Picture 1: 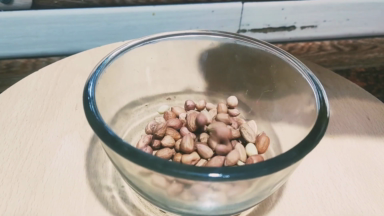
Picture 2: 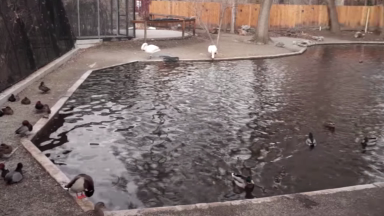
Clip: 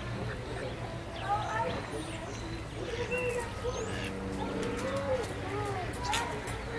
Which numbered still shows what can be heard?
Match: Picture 2